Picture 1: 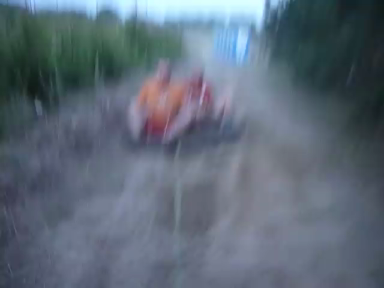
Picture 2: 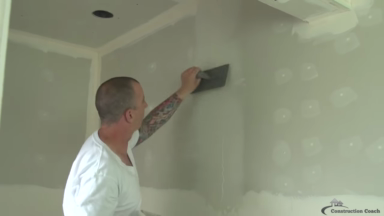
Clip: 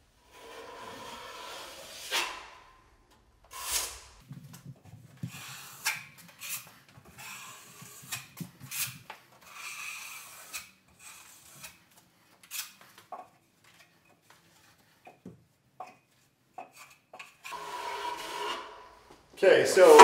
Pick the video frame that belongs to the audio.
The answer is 2